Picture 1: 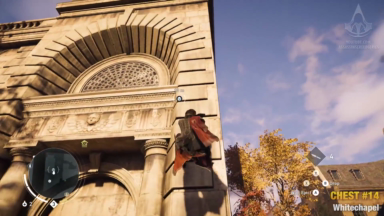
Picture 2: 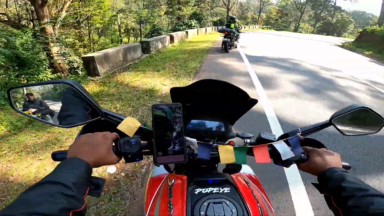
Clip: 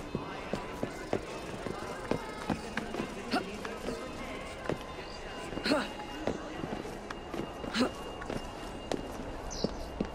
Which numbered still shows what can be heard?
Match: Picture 1